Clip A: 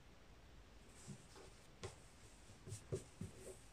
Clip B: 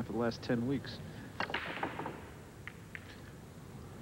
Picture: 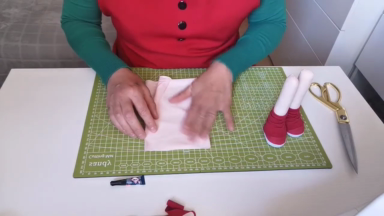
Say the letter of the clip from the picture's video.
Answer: A